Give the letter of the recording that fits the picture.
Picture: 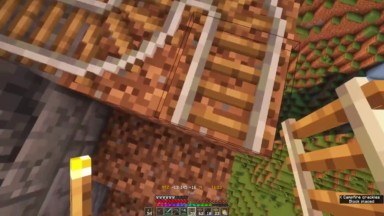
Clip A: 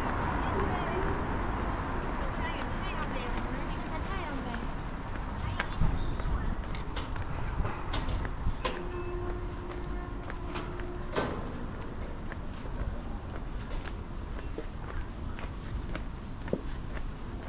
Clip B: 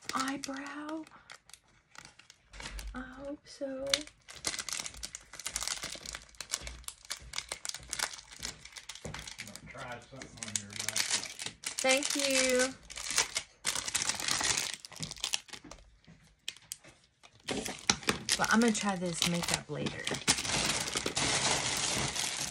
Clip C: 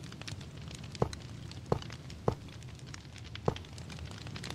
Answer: C